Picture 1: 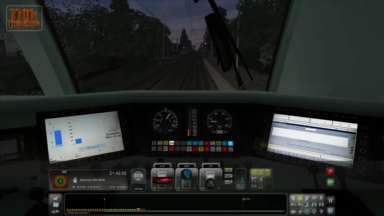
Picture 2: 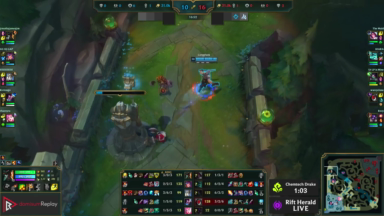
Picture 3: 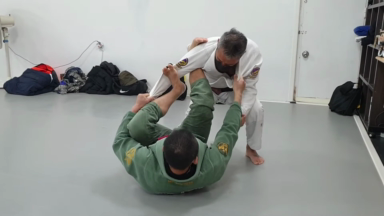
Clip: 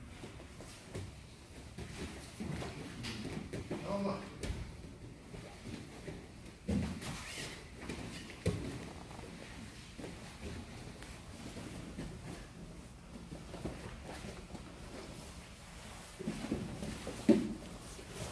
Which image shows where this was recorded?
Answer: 3